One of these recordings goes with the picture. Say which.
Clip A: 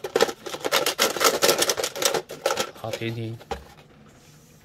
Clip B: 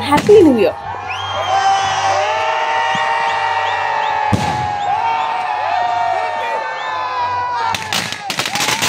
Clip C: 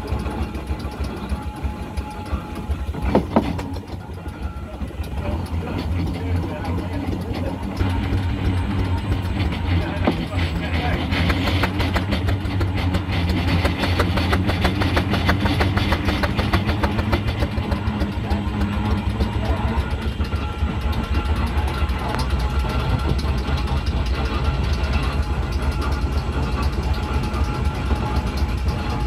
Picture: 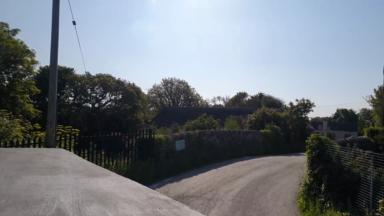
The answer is C